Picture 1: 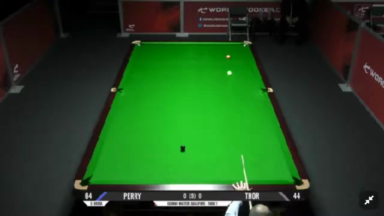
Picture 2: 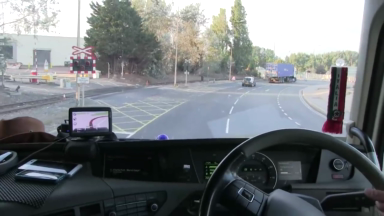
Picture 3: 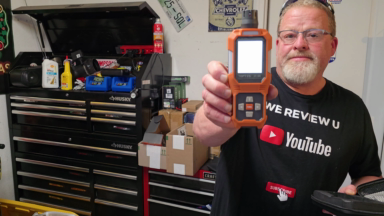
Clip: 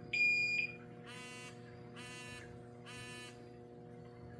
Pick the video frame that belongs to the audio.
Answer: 3